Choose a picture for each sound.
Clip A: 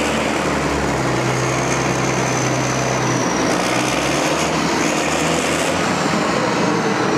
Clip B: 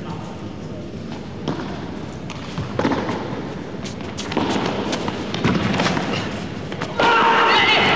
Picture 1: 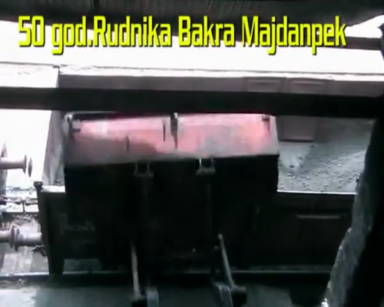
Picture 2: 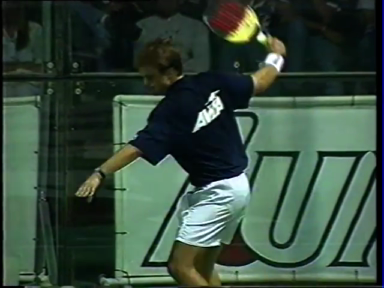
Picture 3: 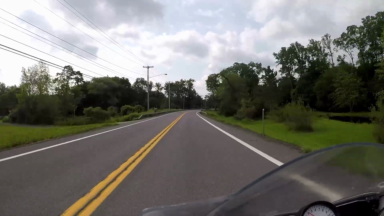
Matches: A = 1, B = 2